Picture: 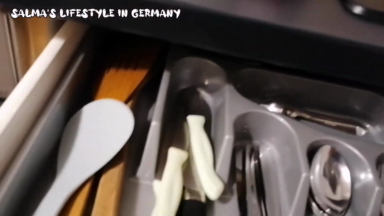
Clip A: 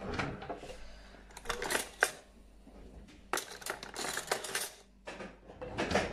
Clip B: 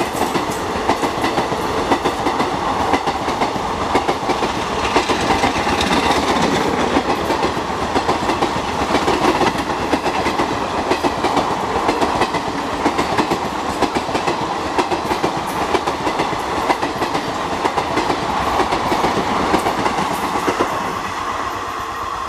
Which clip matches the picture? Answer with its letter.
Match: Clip A